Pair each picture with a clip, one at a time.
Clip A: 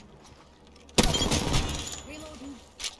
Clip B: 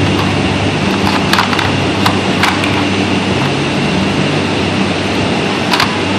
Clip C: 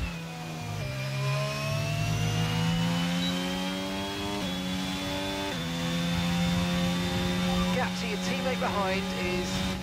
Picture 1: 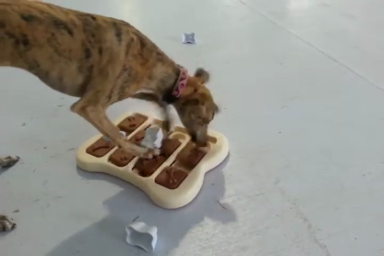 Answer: B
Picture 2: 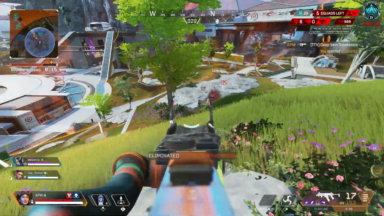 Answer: A